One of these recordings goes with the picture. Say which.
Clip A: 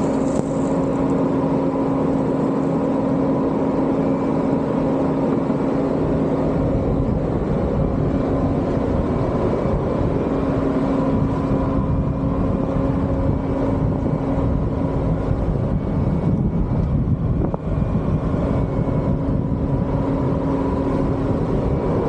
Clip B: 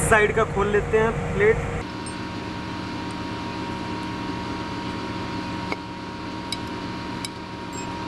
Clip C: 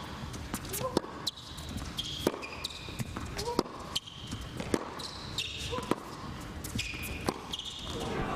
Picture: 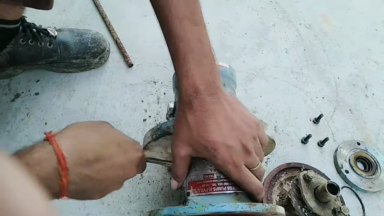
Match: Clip B